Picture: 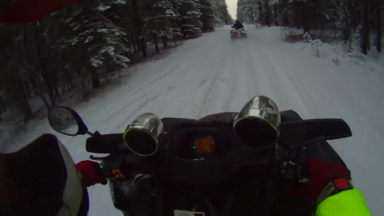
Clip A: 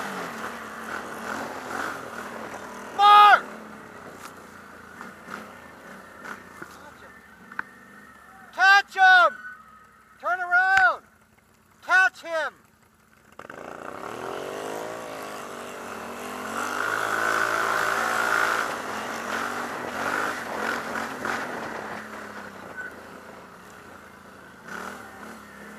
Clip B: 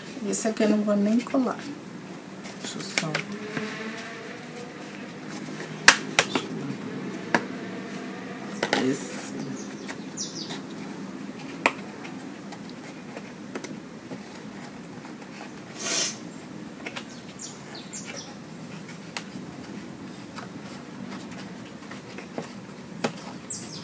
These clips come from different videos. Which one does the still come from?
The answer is A